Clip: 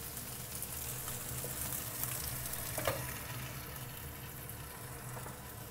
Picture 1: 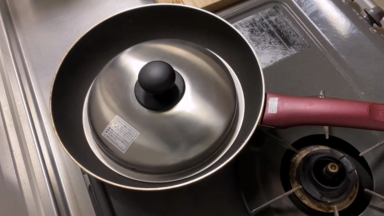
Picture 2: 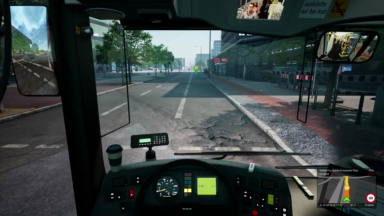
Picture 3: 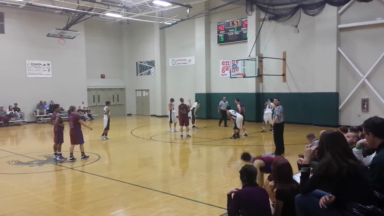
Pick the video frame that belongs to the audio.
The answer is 1